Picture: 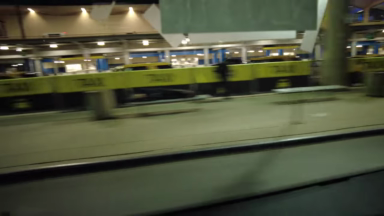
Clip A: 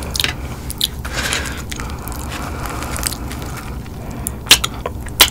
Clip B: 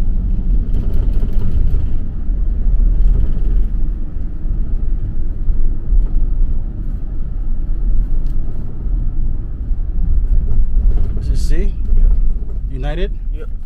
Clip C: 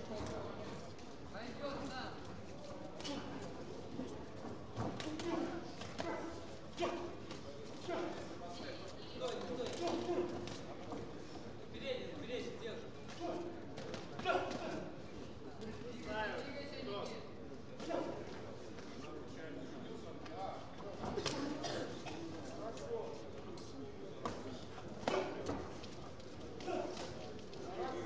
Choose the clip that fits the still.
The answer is B